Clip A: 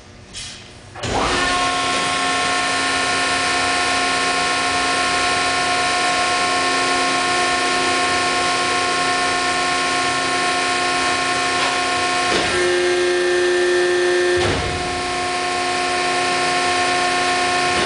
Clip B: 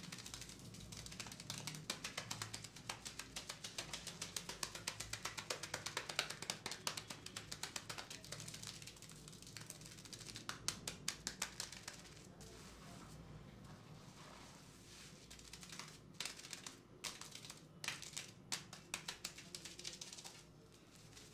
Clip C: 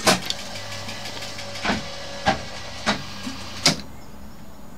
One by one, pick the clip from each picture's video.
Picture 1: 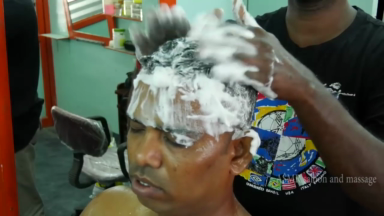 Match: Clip B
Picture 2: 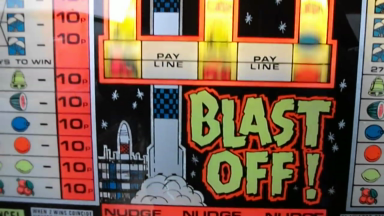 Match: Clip C